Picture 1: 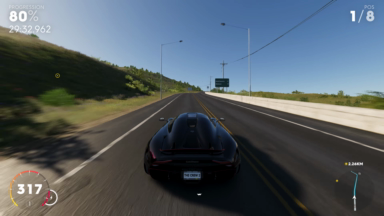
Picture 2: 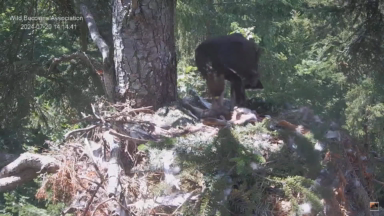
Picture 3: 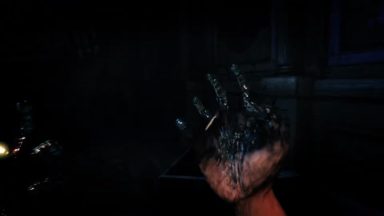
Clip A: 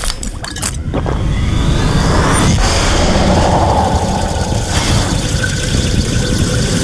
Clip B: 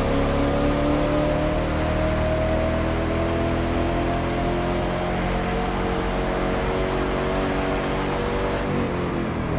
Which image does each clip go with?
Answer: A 3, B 1